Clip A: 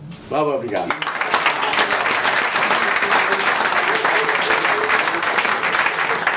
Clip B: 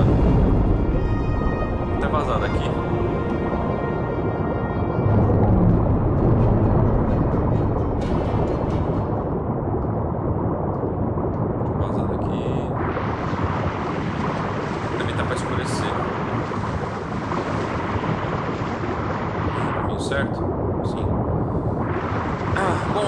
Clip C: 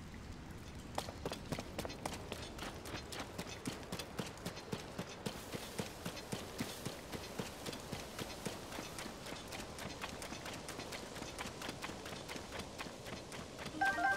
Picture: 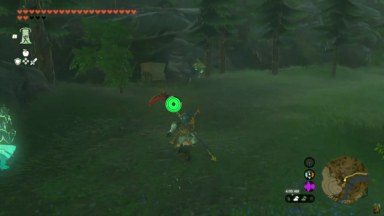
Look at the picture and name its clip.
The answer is C